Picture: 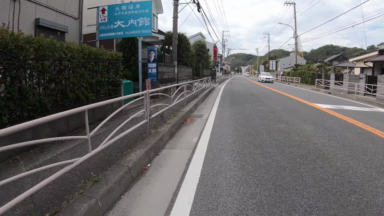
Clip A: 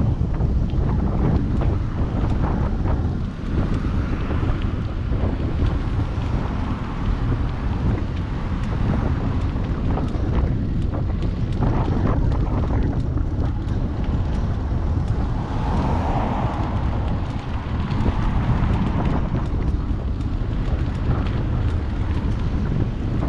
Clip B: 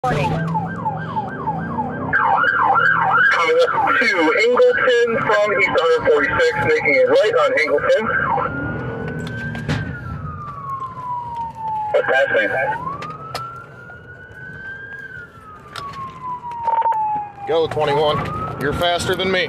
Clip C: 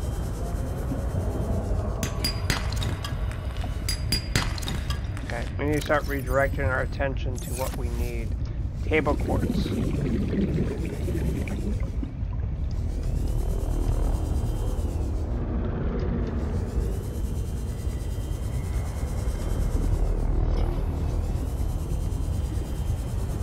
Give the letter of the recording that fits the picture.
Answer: A